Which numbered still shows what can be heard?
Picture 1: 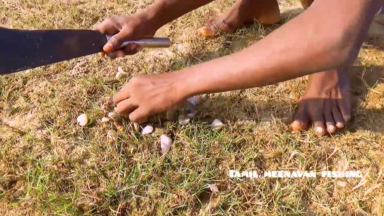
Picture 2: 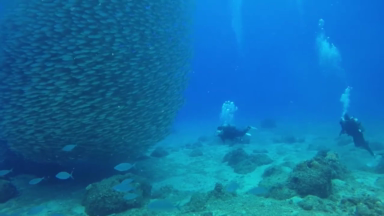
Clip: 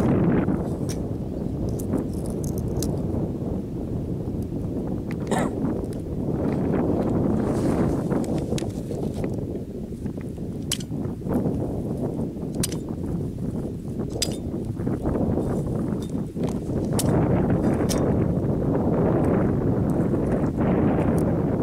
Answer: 1